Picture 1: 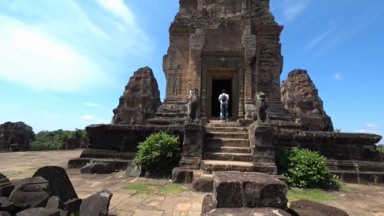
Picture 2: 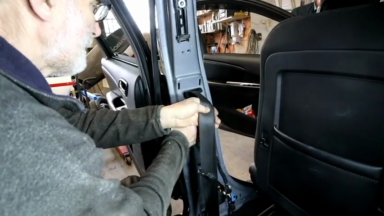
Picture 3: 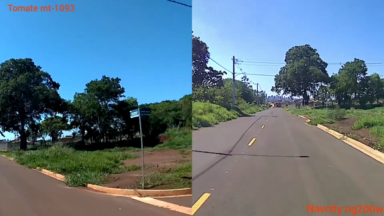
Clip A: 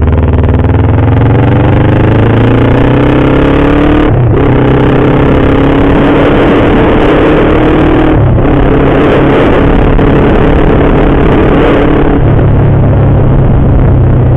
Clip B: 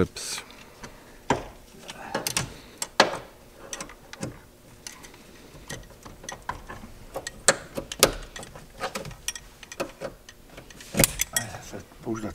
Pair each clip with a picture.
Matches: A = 3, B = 2